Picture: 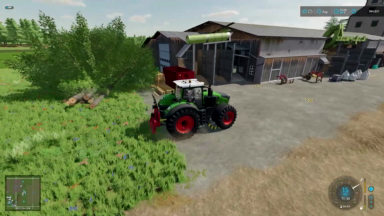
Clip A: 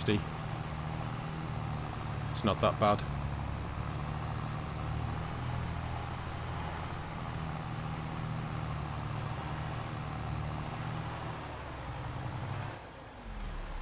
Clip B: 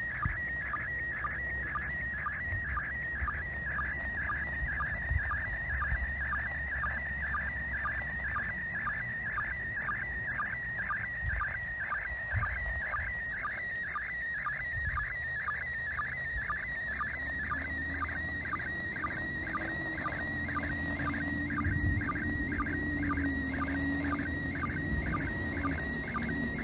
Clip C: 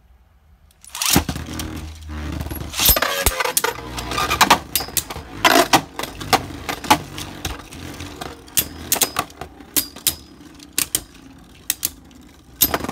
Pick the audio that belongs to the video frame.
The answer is A